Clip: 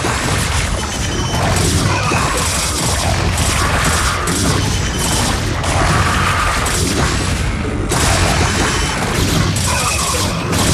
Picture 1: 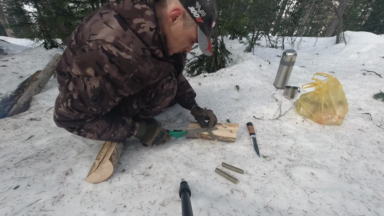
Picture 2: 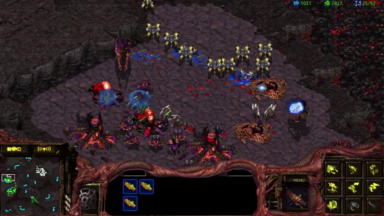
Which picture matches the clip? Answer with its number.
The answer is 2